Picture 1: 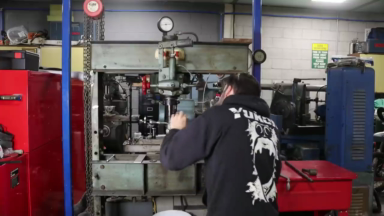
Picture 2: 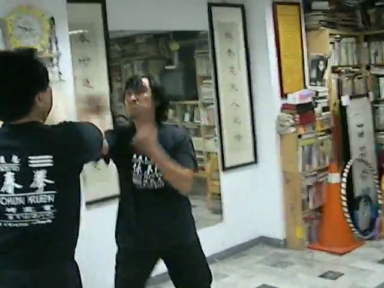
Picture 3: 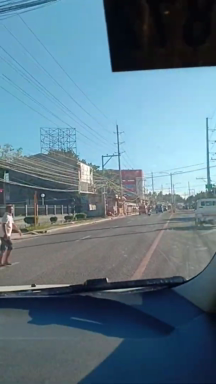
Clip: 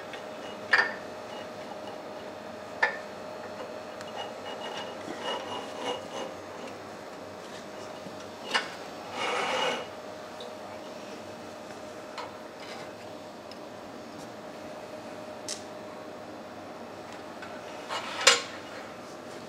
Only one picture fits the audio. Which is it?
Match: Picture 1